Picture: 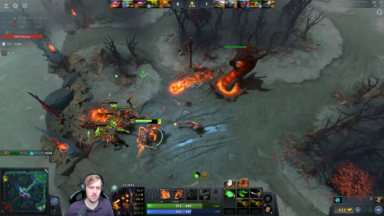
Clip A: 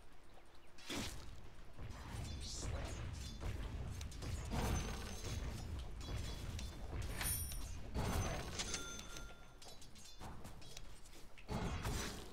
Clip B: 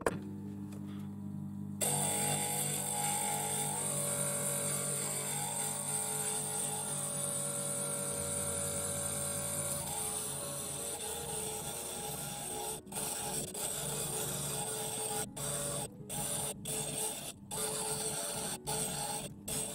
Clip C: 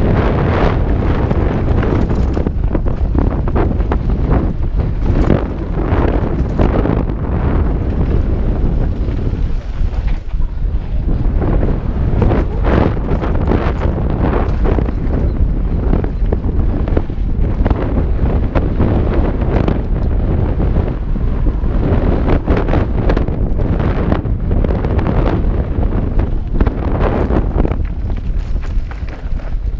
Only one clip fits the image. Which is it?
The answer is A